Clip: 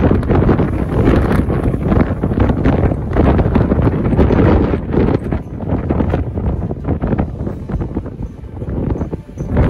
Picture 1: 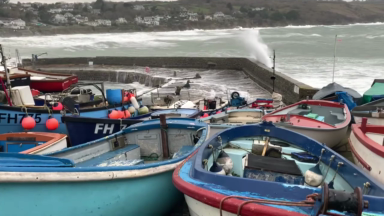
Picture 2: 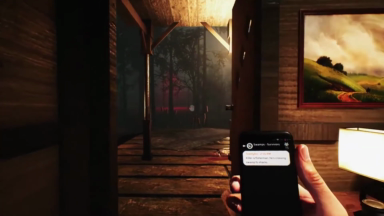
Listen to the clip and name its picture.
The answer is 1